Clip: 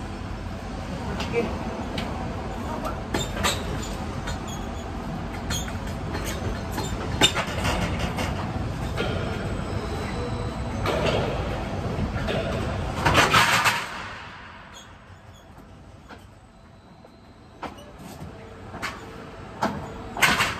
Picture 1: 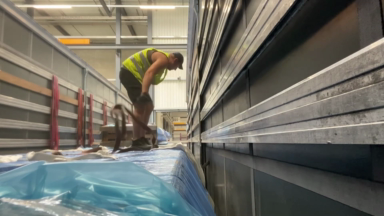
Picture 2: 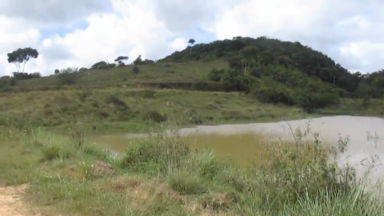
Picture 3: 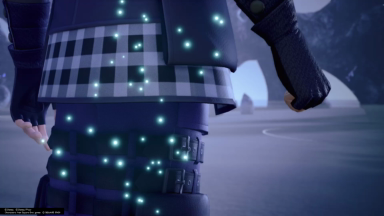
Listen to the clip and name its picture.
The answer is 1